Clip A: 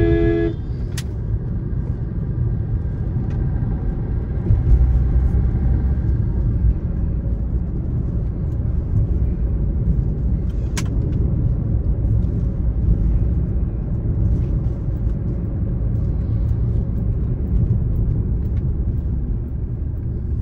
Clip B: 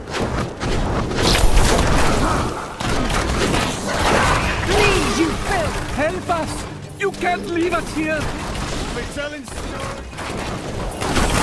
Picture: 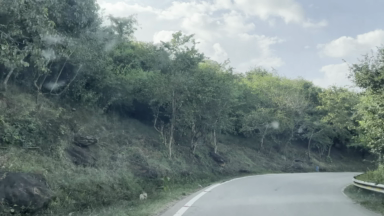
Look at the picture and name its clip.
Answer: A